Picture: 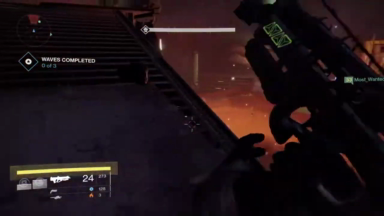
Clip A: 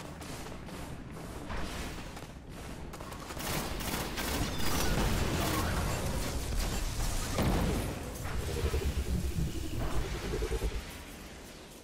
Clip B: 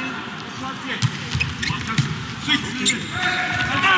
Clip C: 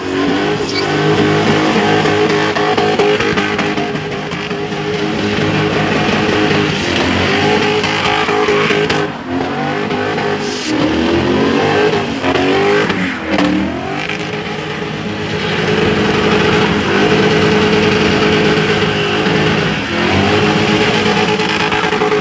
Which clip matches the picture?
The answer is A